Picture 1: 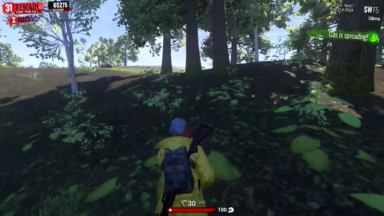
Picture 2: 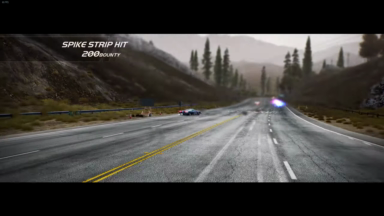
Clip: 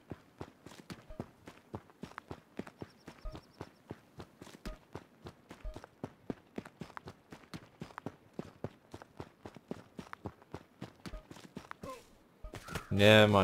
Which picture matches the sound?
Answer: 1